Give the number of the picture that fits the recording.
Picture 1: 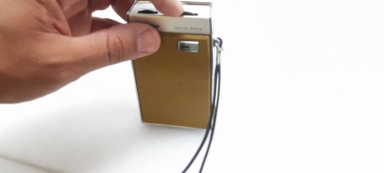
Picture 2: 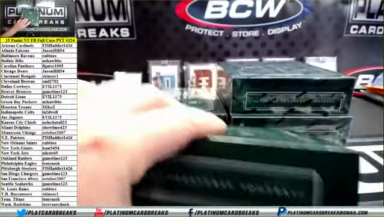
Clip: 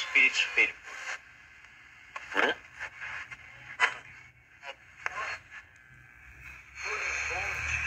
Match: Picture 1